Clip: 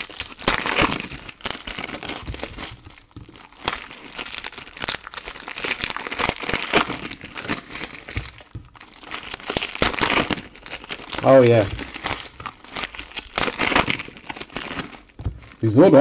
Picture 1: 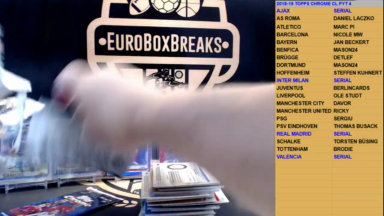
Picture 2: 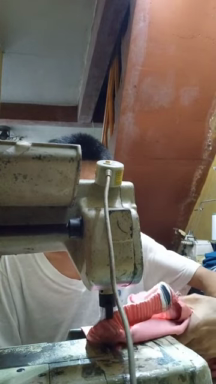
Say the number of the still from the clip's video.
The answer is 1